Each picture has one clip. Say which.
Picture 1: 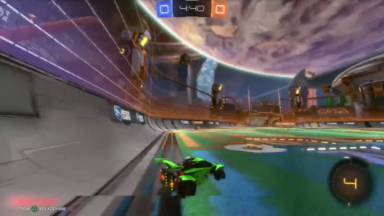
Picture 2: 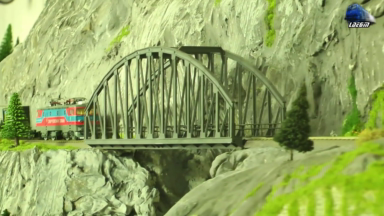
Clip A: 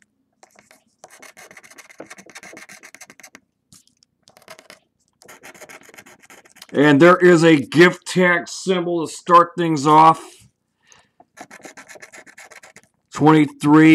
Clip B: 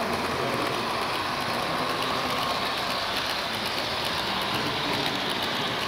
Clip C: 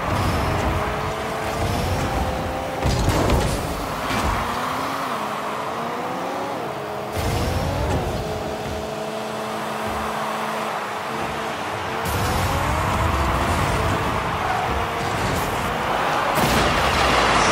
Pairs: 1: C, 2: B